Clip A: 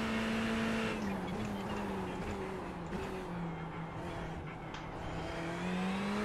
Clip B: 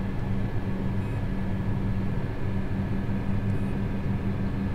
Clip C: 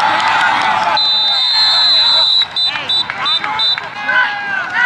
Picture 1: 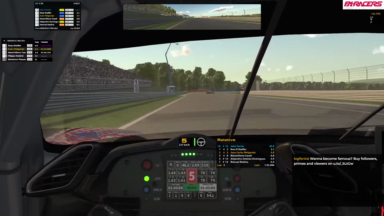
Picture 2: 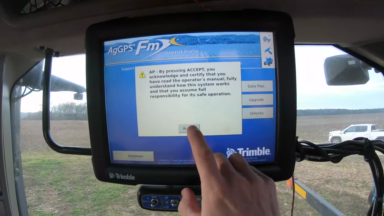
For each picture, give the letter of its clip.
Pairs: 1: A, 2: B